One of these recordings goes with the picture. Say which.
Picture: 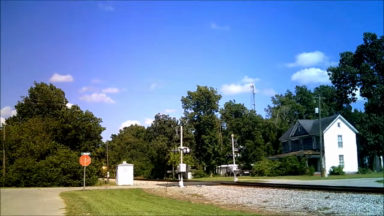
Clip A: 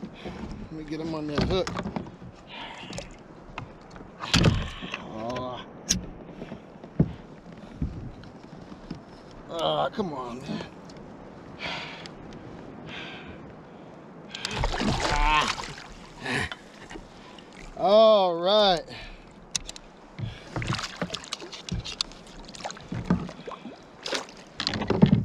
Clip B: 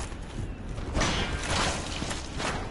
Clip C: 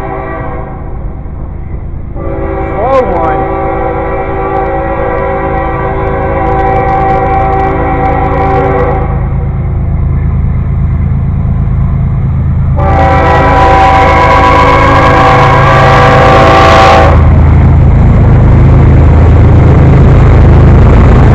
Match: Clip C